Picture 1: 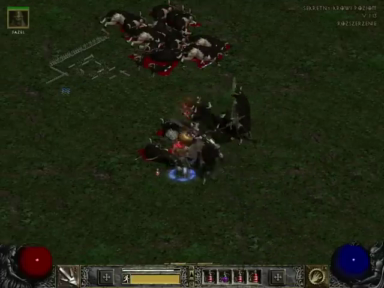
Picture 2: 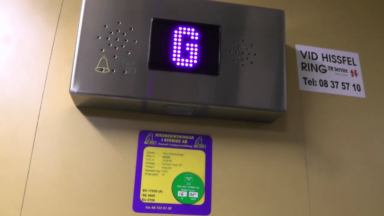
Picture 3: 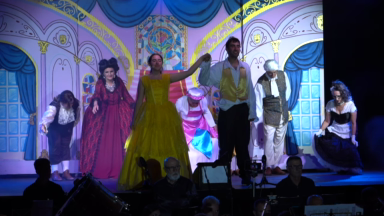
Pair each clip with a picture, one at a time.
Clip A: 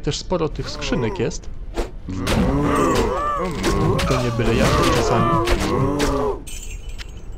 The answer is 1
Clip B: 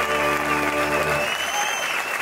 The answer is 3